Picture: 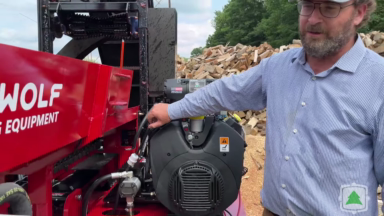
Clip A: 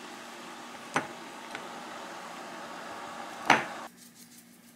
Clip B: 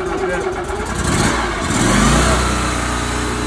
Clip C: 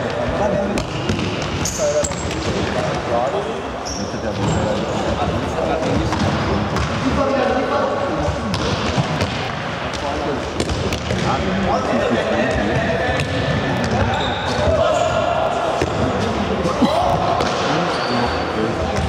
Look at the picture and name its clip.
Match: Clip B